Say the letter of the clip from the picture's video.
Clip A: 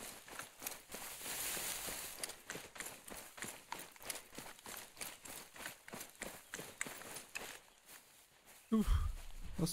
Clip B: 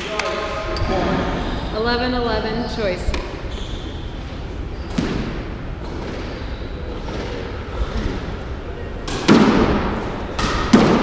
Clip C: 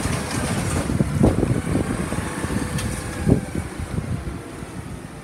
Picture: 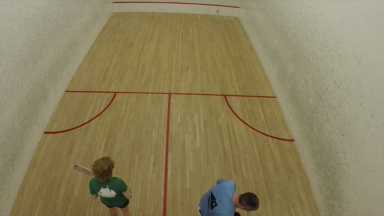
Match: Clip B